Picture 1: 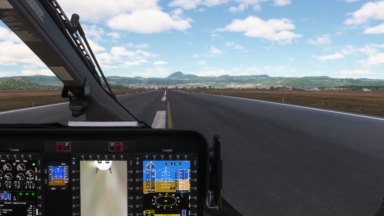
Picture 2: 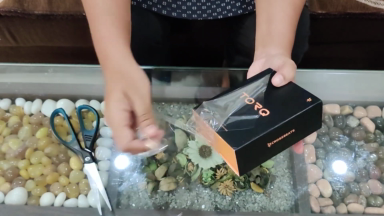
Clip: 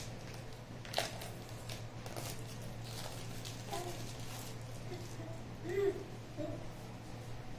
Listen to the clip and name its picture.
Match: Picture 2